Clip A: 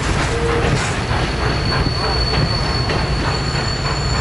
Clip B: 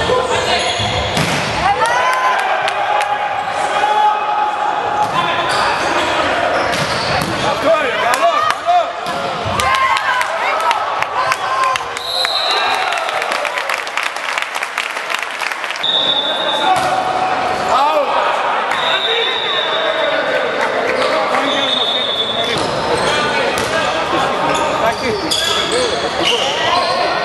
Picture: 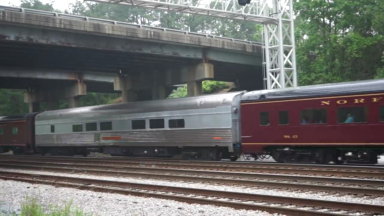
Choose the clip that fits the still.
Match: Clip A